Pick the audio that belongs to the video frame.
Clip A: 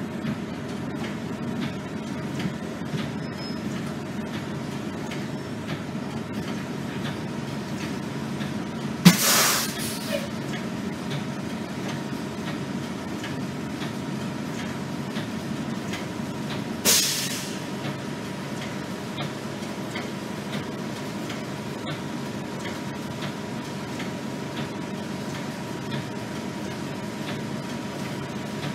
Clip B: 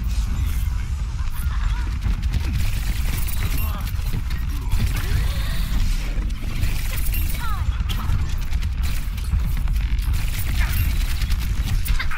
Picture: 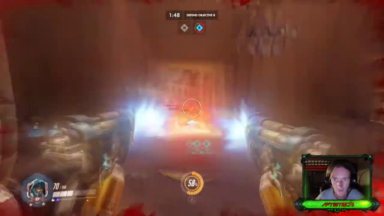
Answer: B